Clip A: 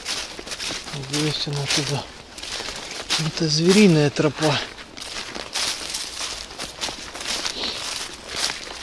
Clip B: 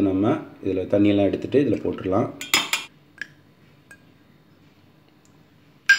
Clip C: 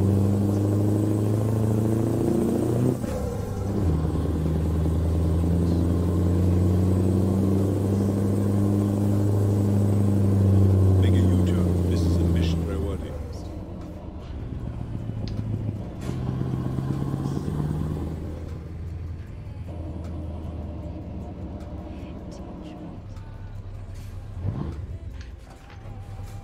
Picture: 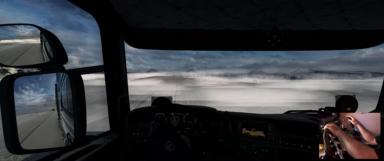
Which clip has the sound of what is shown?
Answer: C